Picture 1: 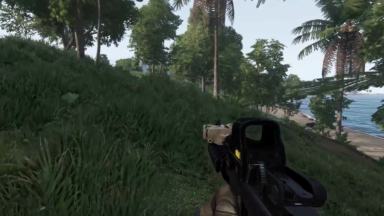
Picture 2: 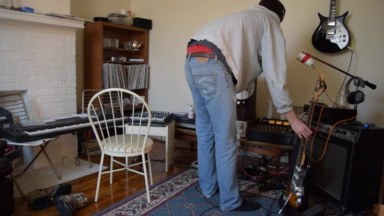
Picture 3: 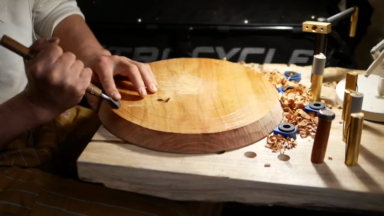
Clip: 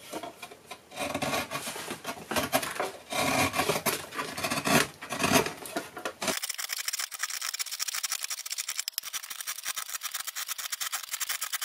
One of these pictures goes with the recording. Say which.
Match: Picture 3